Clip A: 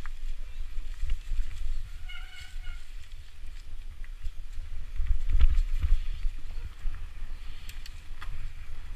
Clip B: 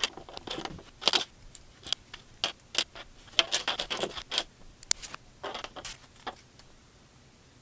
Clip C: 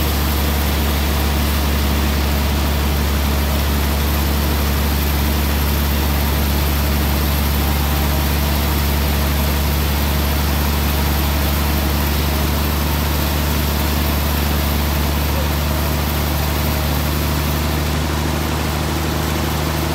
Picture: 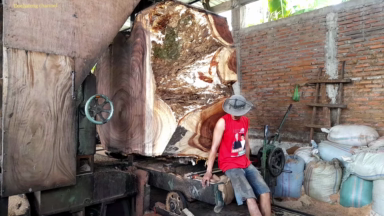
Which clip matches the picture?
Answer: C